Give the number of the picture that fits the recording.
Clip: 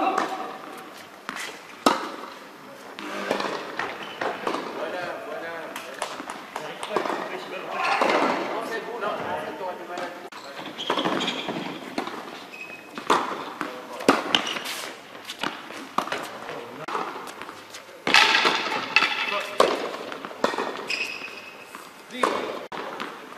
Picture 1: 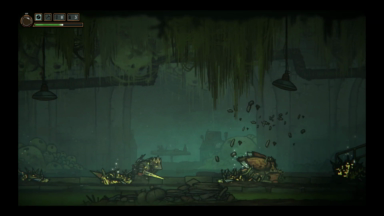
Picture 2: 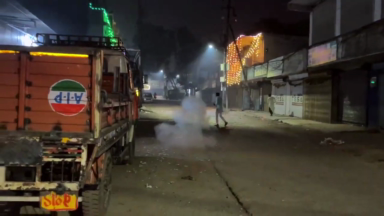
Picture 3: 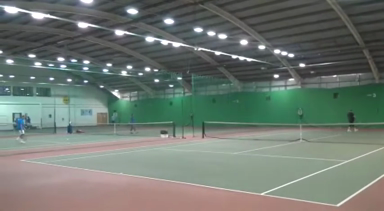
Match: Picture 3